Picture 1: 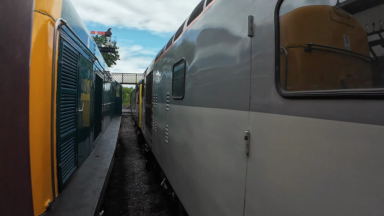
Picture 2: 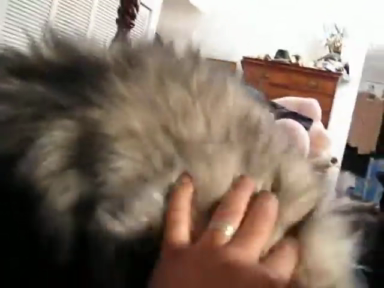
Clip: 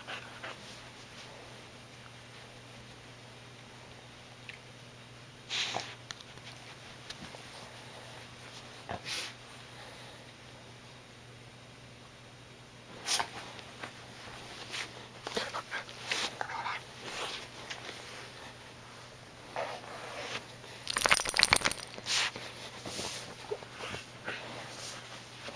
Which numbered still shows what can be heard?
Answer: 2